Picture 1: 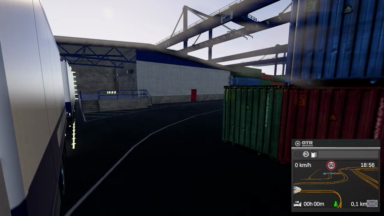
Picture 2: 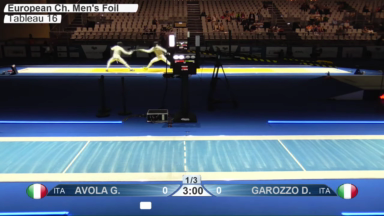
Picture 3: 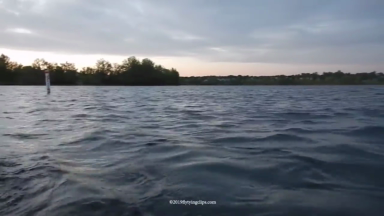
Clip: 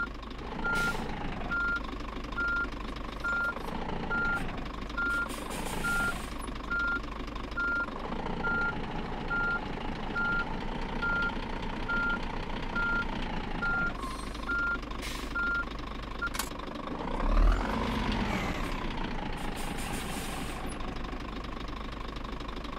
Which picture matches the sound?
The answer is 1